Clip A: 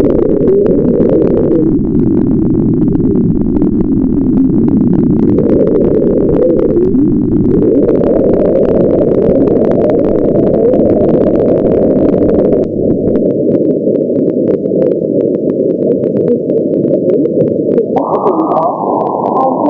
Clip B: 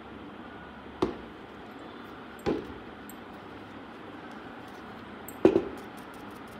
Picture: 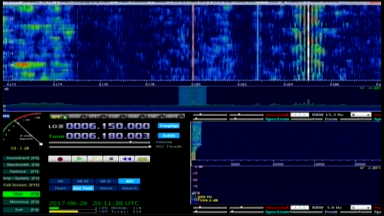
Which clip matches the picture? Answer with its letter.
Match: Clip A